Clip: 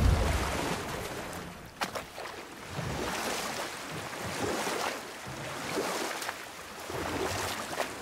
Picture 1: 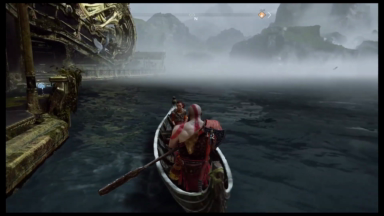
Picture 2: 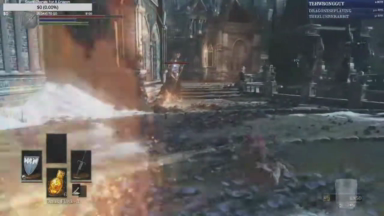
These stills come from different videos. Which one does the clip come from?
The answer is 1